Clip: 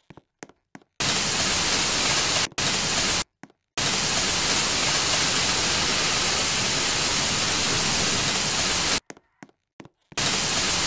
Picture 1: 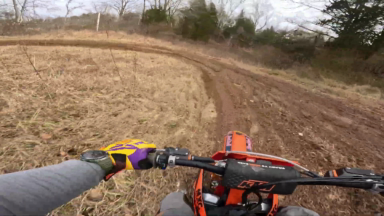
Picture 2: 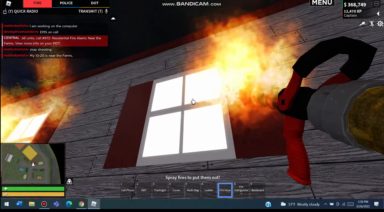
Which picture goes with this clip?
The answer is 2